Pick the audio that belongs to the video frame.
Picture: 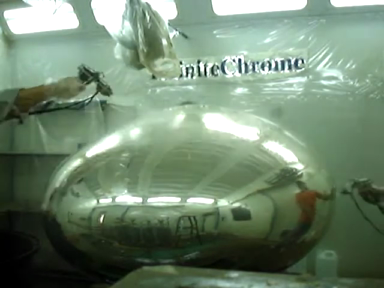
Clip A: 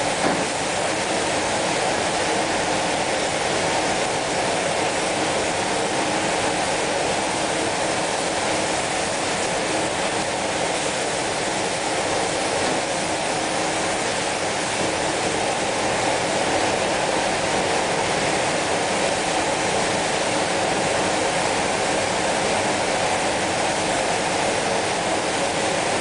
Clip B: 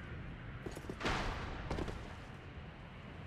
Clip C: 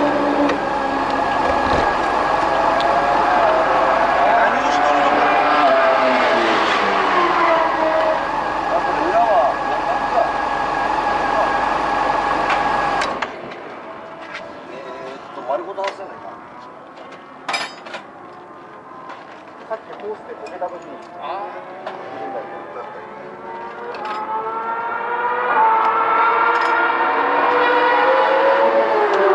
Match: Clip A